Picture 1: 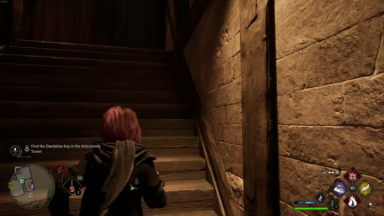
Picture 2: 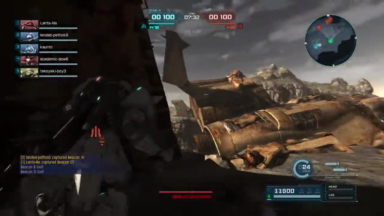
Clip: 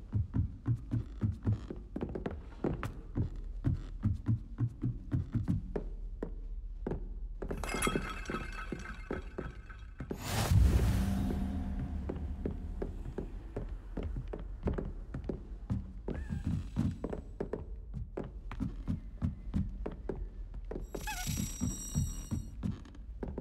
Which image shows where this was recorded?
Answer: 1